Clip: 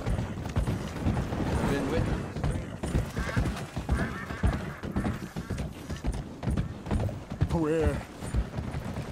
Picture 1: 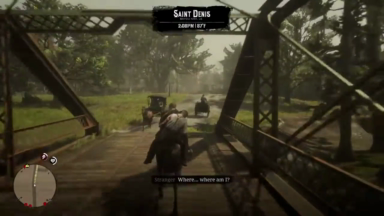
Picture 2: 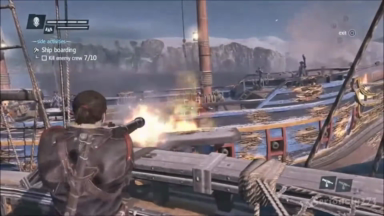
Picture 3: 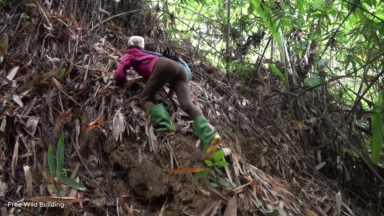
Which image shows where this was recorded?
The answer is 1